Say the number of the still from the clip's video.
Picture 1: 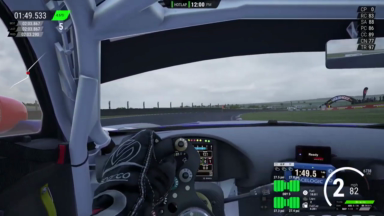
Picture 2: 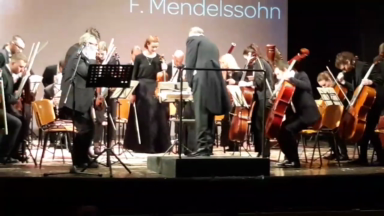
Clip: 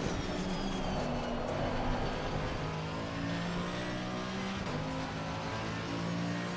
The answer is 1